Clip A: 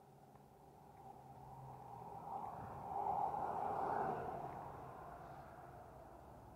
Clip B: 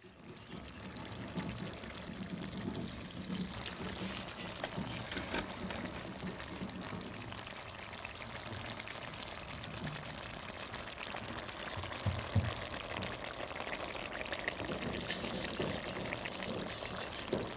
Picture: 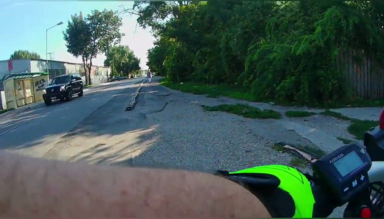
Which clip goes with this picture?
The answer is A